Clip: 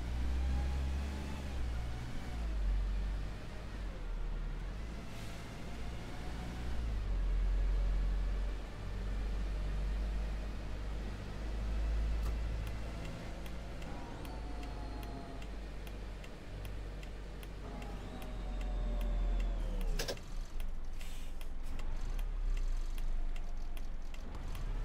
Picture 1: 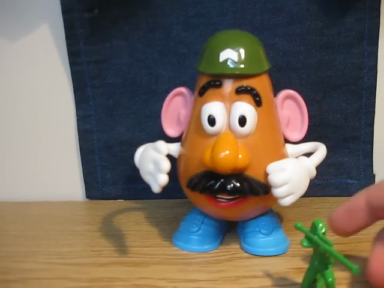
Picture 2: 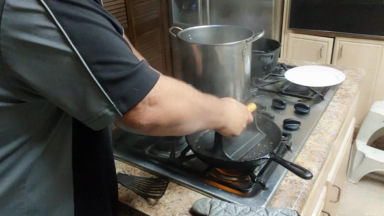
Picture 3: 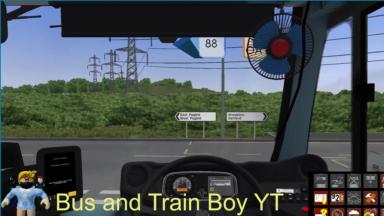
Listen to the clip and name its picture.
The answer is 3